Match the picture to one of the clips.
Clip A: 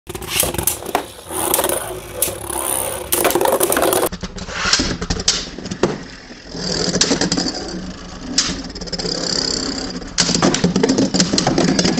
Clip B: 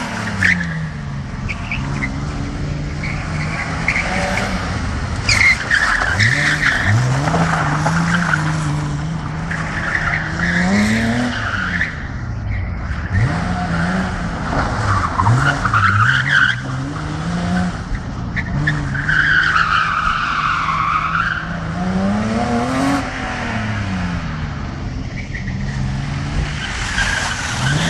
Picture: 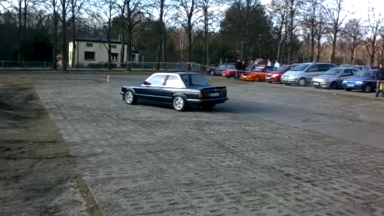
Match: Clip B